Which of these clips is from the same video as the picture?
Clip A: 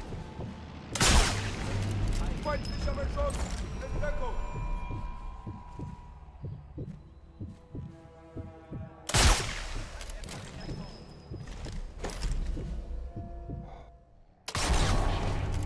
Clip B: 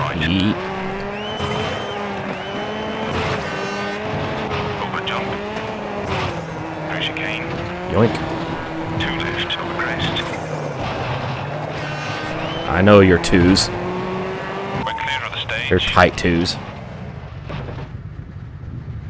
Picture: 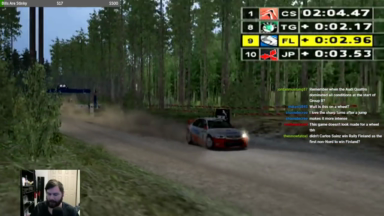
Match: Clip B